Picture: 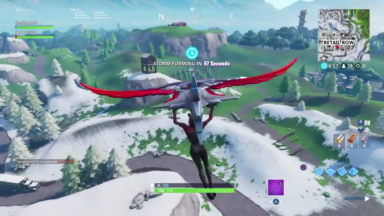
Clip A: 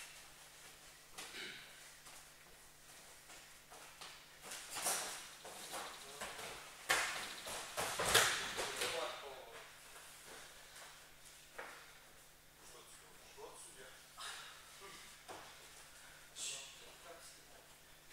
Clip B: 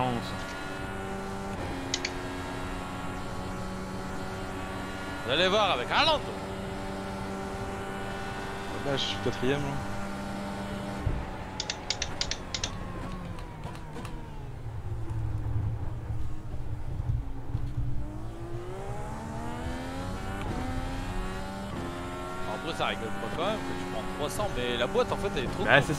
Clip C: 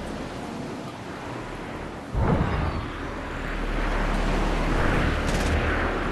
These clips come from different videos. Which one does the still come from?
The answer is C